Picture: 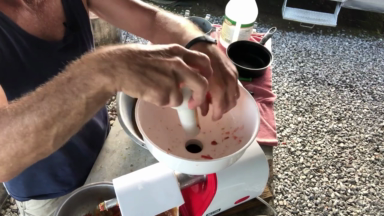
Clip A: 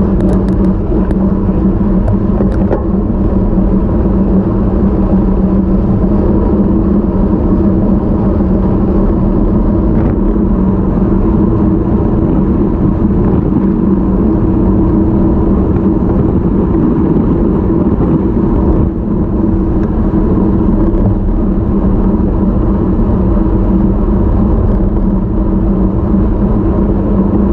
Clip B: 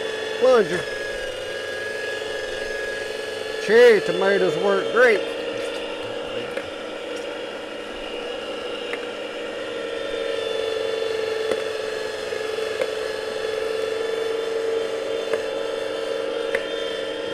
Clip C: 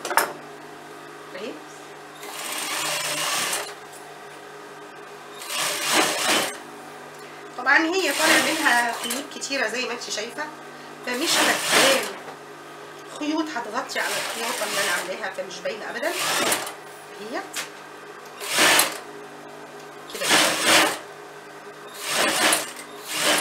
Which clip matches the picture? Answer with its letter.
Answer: B